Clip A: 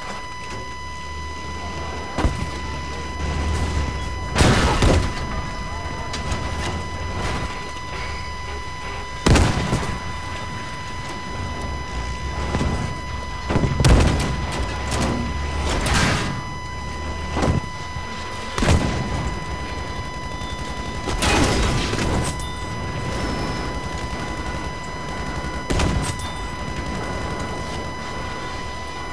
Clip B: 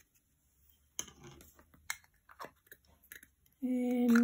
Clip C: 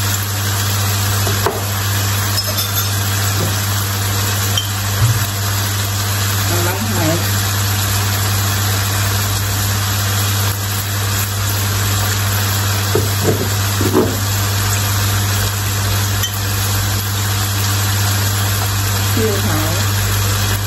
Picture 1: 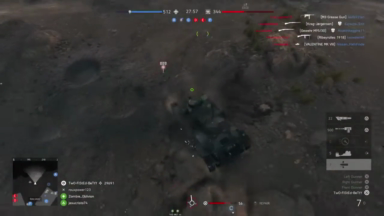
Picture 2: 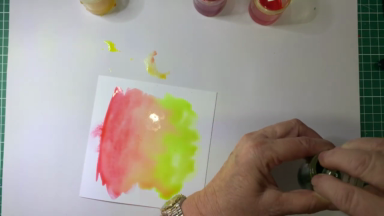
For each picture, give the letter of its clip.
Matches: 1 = A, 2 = B